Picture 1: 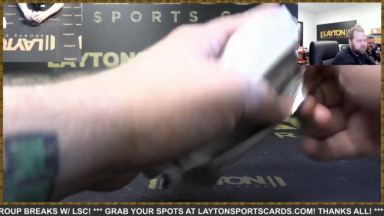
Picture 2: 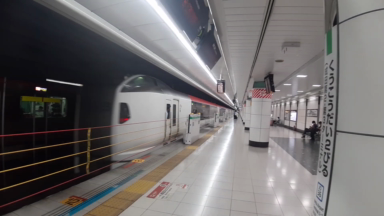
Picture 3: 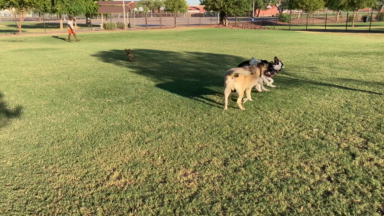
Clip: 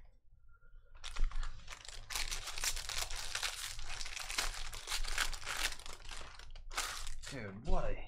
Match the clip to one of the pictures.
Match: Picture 1